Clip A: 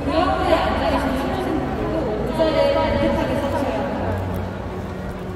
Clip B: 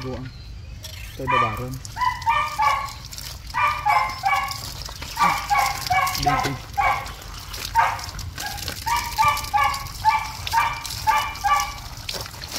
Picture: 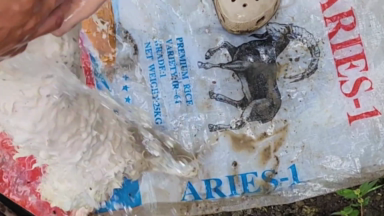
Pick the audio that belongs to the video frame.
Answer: B